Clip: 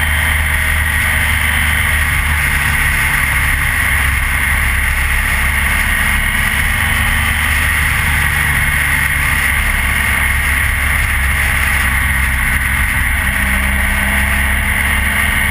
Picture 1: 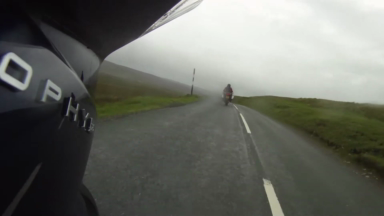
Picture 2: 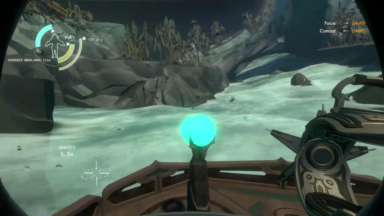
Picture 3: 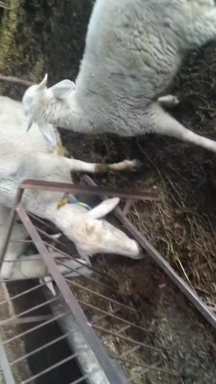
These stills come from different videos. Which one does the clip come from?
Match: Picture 1